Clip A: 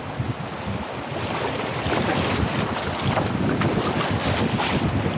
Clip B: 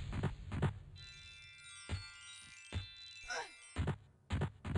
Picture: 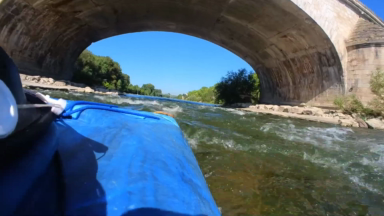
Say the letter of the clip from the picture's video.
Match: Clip A